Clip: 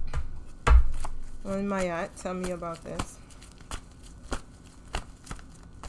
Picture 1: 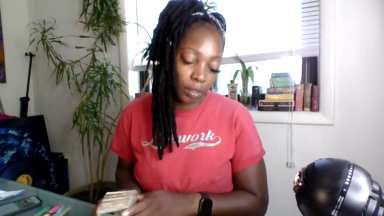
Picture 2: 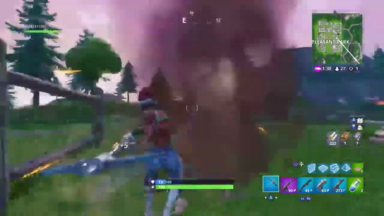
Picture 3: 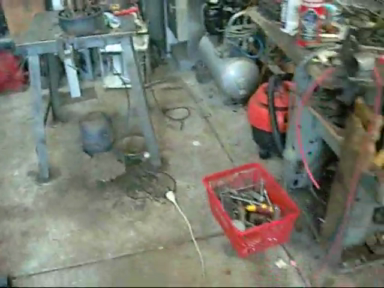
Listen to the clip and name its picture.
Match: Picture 1